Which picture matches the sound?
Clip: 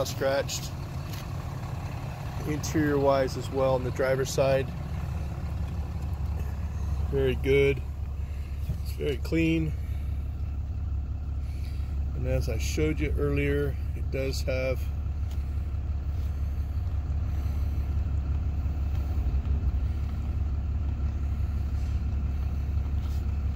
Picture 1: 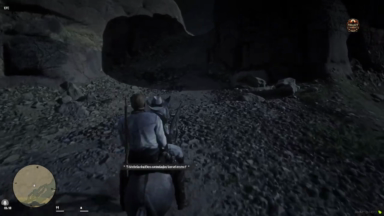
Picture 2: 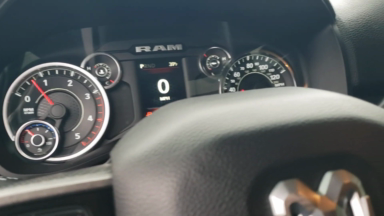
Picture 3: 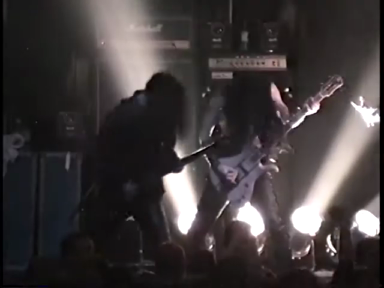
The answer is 2